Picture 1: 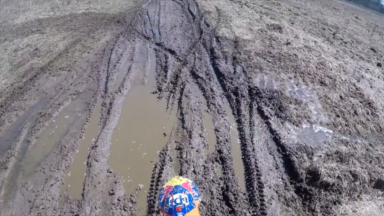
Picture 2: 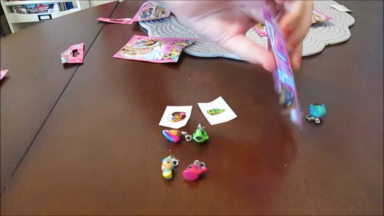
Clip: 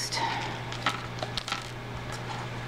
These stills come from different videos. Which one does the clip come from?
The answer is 2